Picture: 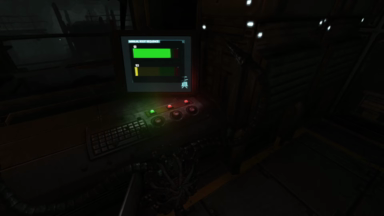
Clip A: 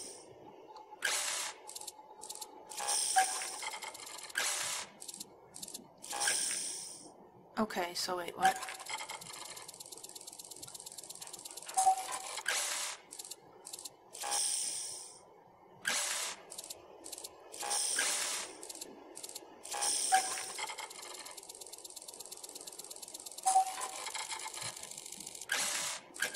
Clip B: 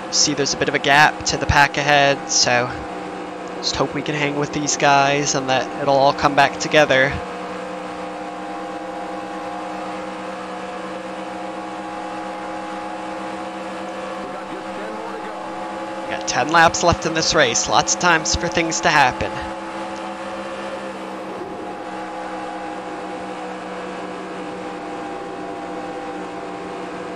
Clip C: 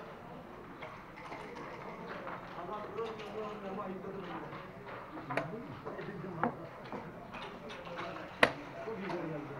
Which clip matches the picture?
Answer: A